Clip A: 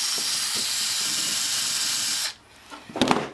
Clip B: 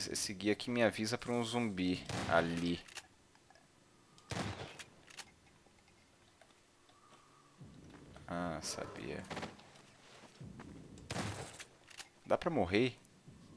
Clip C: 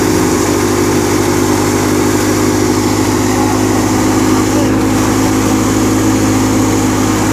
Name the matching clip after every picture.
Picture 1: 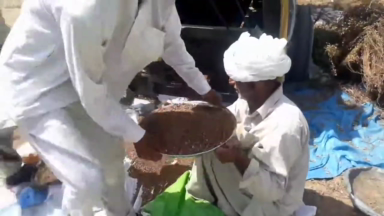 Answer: C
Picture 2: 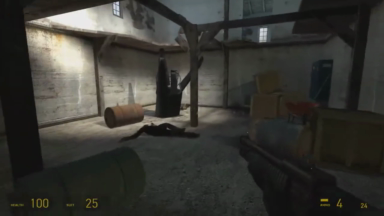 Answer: B